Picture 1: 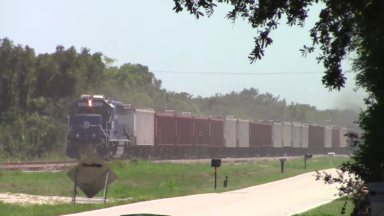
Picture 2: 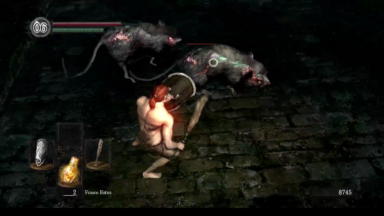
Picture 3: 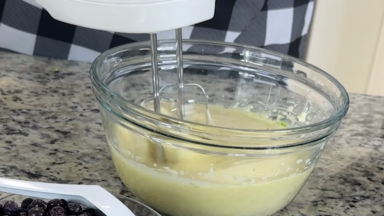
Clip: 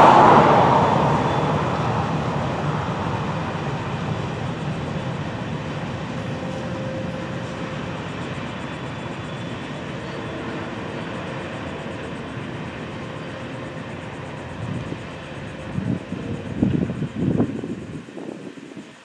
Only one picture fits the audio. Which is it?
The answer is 1